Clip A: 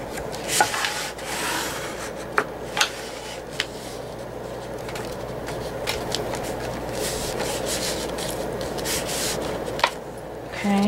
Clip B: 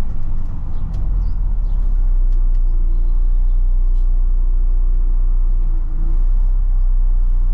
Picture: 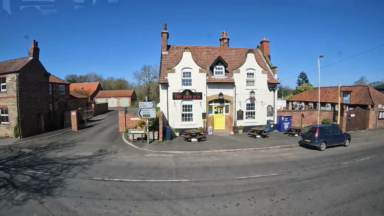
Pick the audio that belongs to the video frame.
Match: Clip B